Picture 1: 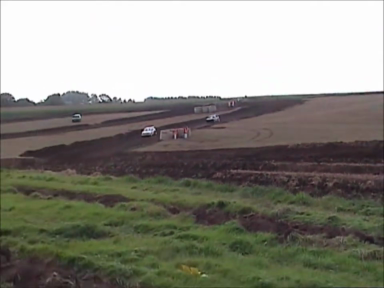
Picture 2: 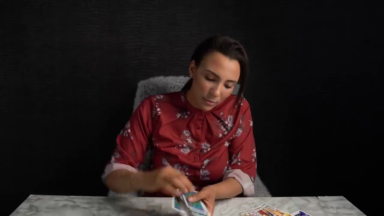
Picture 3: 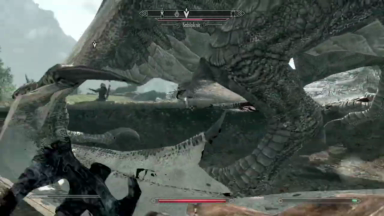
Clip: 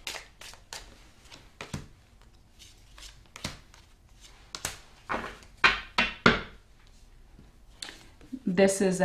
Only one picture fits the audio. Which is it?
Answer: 2